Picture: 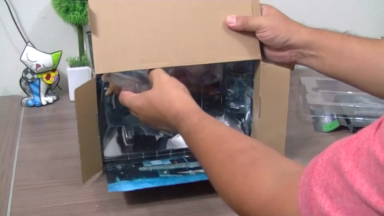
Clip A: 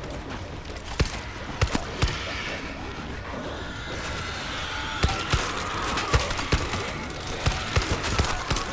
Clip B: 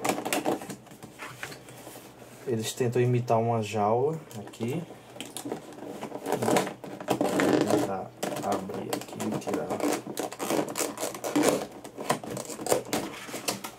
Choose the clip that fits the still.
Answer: B